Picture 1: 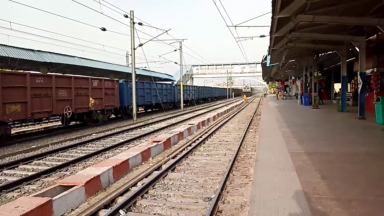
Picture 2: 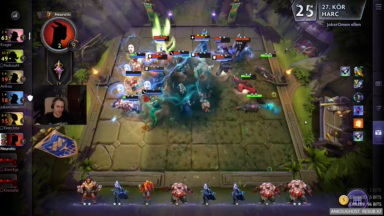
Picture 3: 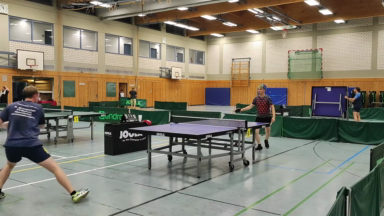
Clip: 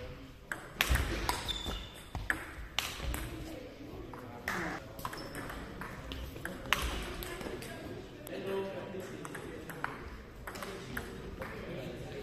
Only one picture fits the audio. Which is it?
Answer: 3